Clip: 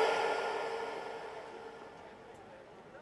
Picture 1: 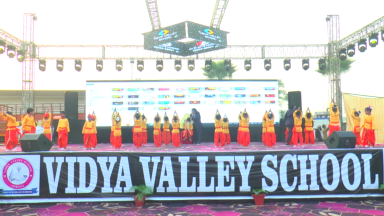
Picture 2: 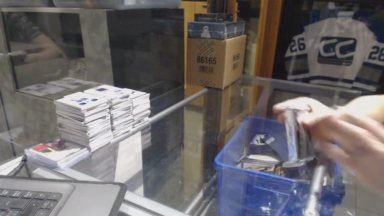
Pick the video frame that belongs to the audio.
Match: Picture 1